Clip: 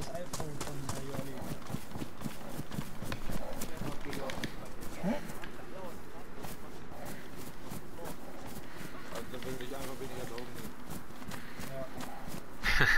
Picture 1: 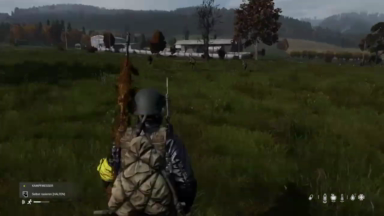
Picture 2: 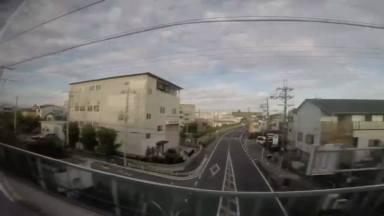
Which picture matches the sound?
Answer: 1